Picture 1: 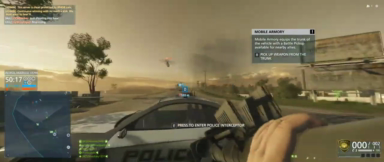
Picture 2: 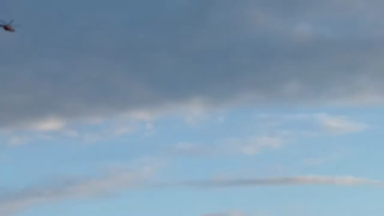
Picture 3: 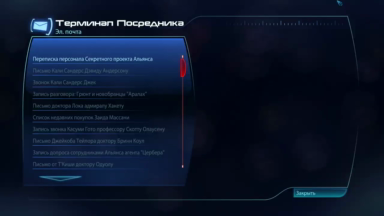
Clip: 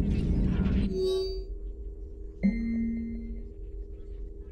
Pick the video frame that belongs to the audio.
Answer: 3